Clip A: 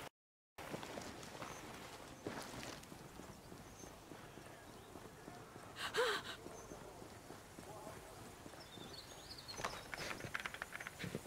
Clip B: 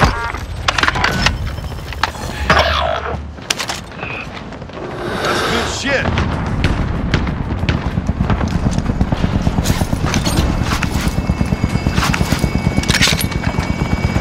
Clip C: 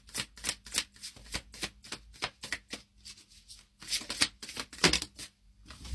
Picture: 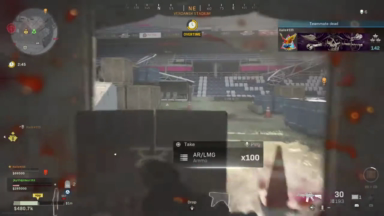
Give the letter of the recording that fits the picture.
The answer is B